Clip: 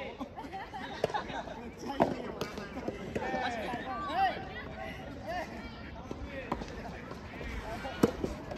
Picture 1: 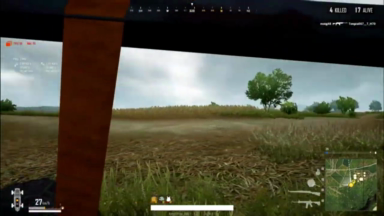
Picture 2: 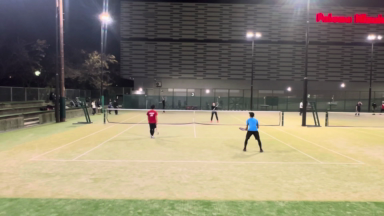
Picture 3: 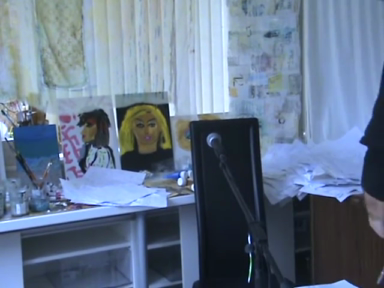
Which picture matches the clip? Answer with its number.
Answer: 2